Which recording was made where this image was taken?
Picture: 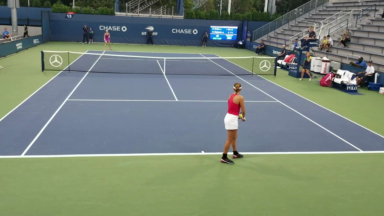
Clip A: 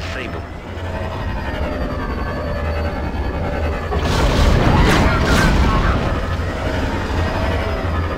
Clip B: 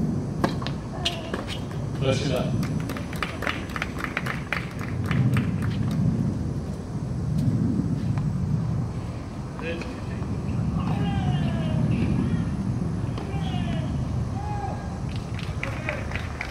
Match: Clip B